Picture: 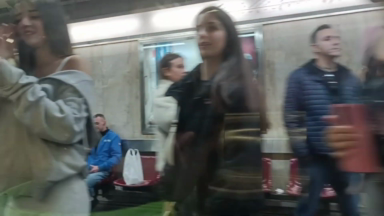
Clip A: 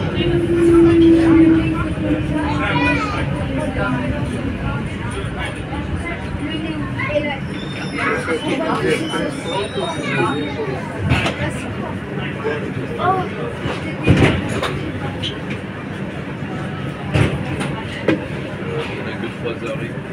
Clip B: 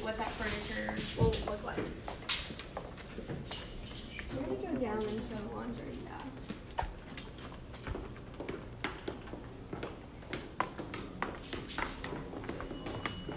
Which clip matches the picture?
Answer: A